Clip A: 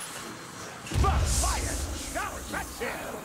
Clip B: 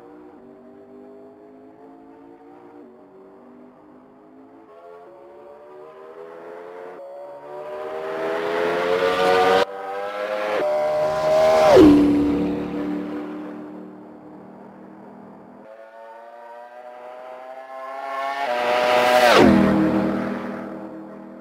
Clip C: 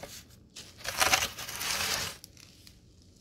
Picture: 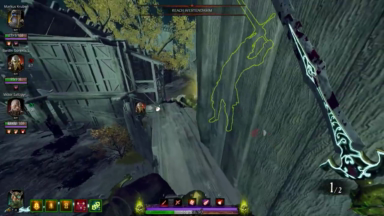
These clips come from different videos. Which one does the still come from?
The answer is A